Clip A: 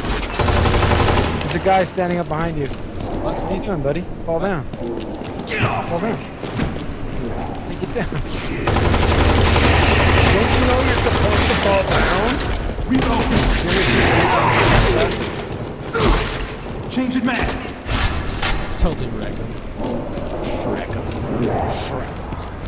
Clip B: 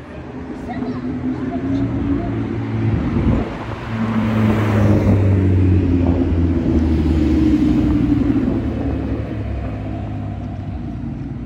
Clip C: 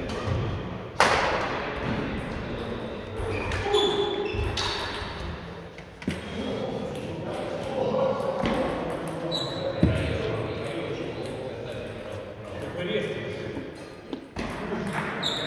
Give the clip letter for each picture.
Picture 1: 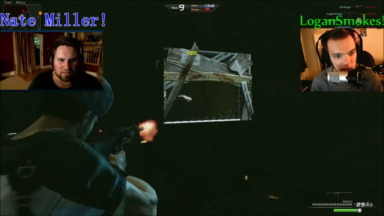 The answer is A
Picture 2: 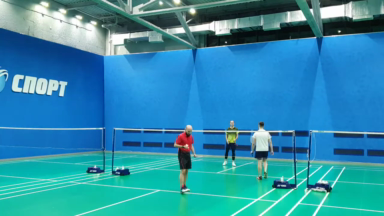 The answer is C